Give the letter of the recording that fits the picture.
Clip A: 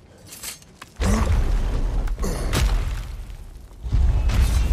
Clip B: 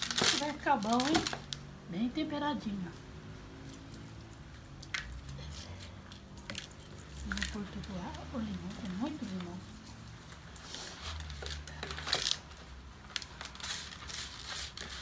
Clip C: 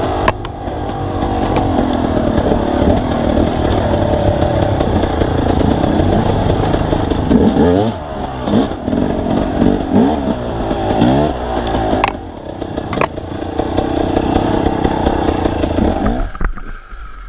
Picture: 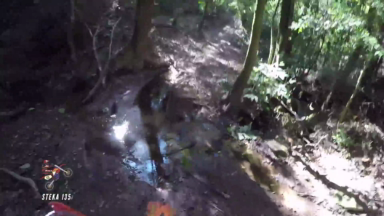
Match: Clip C